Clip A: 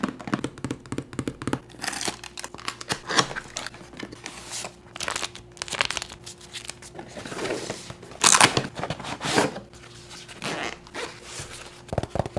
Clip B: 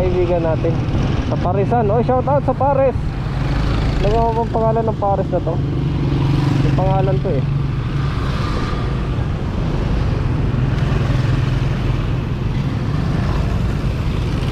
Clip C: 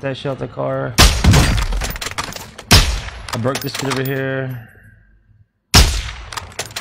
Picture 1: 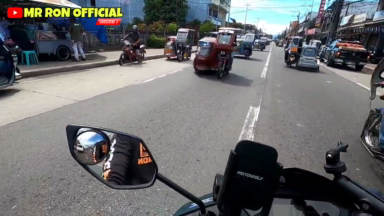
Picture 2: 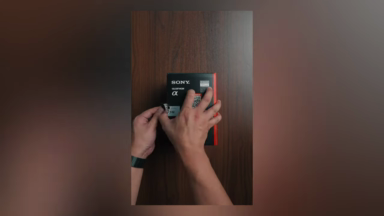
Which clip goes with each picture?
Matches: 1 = B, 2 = A